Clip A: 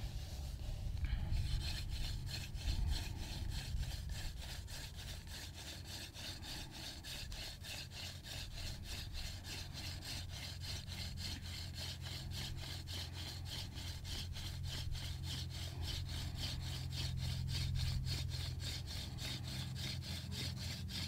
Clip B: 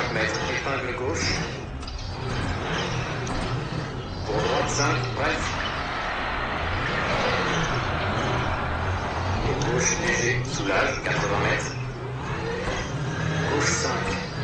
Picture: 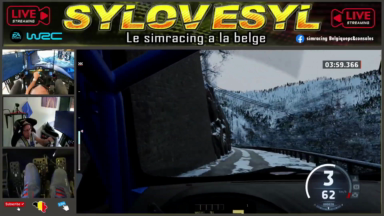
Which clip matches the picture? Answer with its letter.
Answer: B